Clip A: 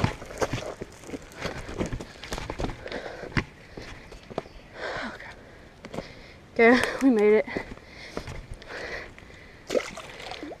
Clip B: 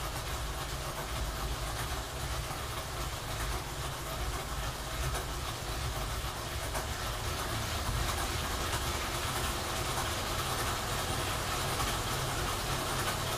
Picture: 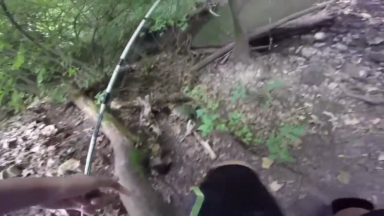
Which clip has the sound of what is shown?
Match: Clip A